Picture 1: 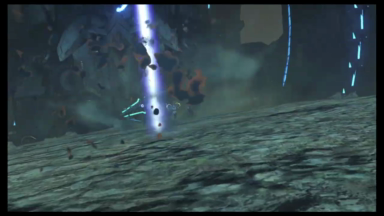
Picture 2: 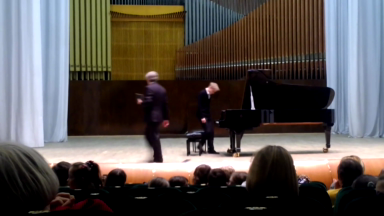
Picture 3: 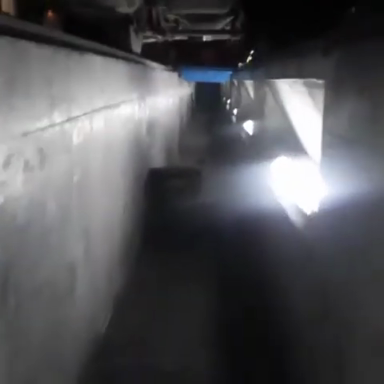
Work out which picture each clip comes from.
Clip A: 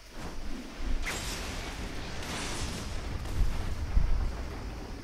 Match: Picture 1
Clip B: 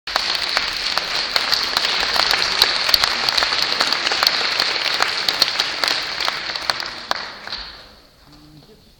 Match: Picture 2